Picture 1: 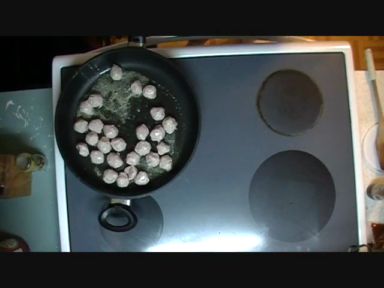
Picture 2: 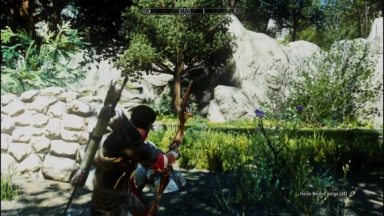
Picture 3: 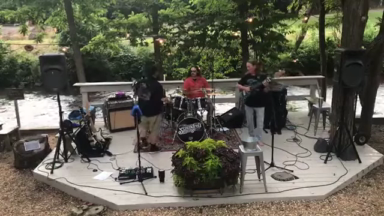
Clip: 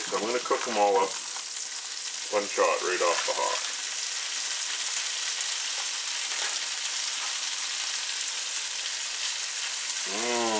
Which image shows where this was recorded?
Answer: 1